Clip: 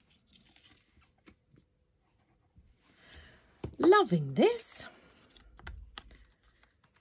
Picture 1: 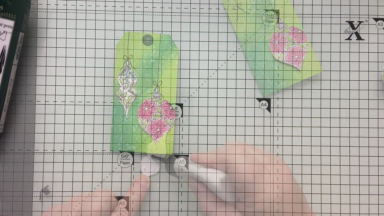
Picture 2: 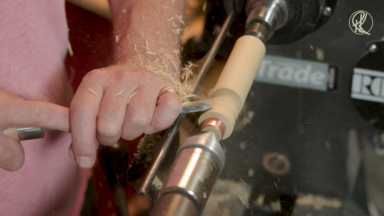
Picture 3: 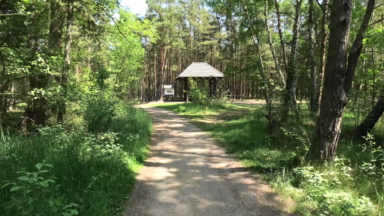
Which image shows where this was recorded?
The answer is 1